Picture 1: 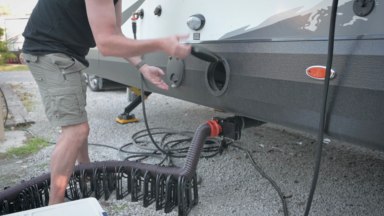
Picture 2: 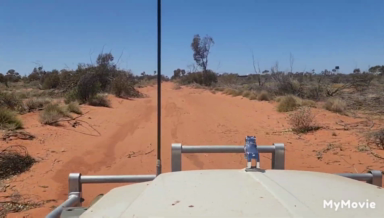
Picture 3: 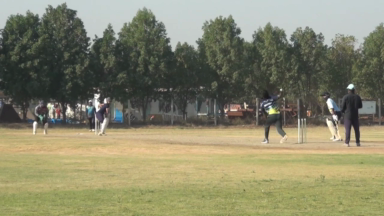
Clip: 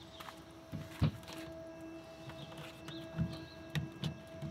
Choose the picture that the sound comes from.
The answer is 1